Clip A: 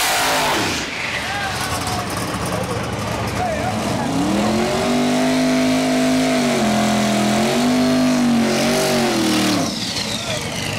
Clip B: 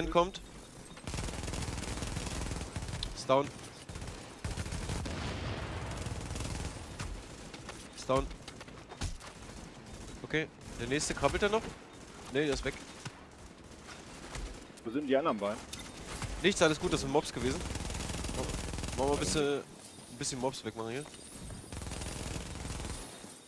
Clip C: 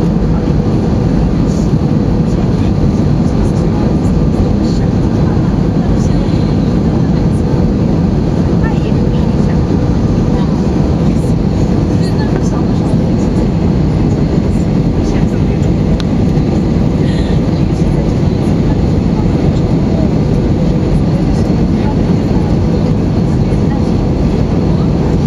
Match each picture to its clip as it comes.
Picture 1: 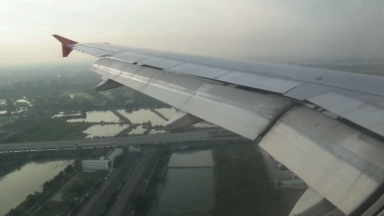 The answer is C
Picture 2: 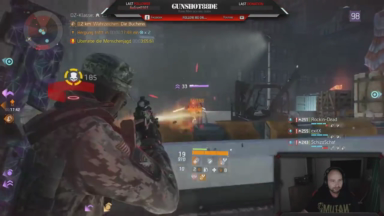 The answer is B